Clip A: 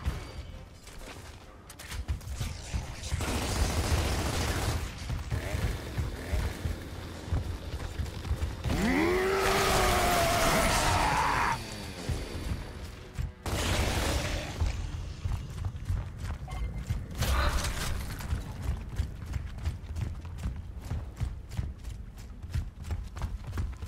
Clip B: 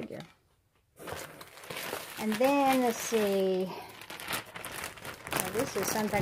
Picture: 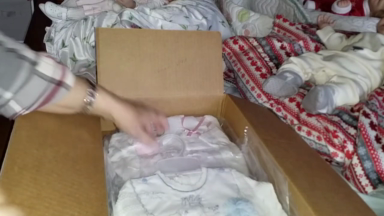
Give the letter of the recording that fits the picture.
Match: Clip B